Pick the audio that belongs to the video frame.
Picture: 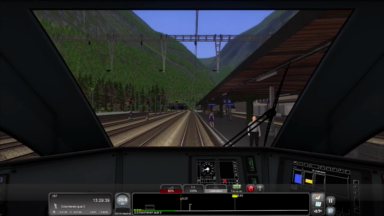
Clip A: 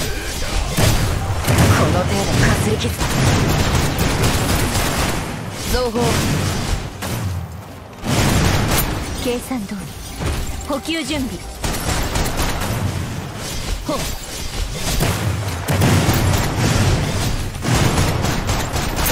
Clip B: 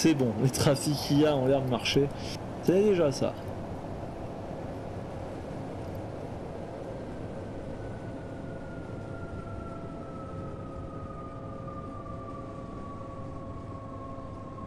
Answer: B